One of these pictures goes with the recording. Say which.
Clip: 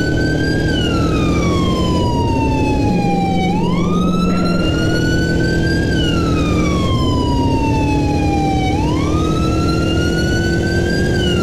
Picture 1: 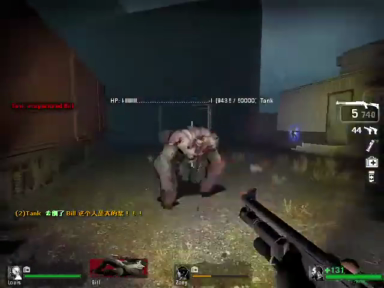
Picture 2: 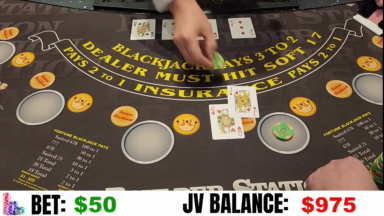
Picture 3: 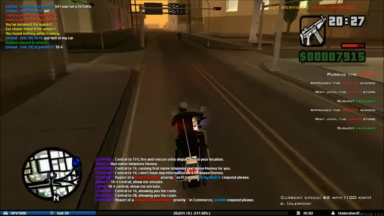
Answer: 3